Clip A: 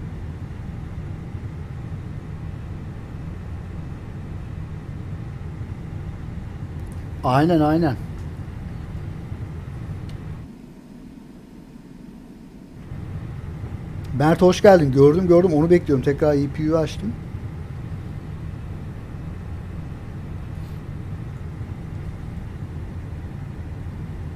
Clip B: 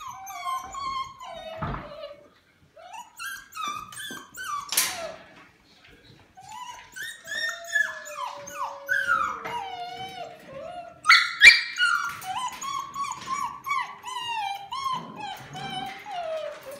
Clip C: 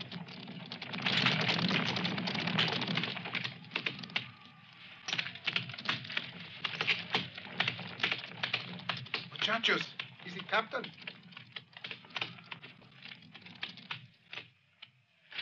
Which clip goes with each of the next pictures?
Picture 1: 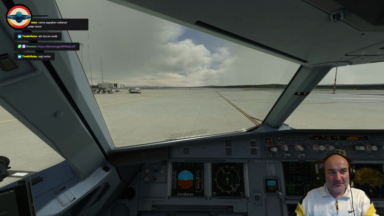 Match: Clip A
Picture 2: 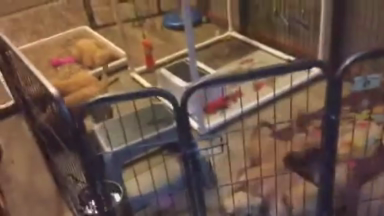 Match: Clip B